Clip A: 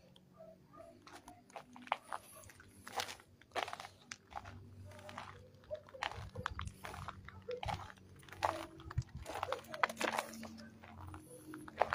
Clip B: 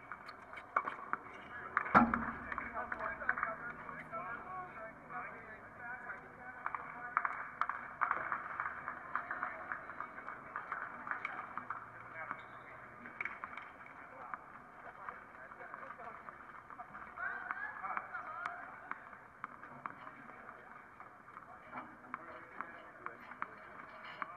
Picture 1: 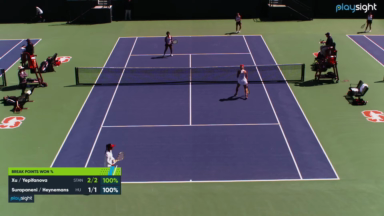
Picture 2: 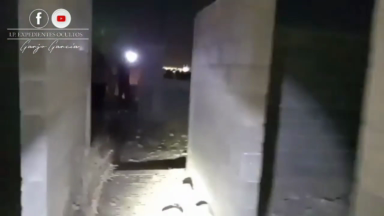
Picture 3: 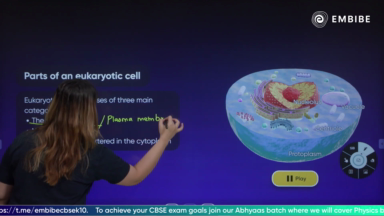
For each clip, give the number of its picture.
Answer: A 2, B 1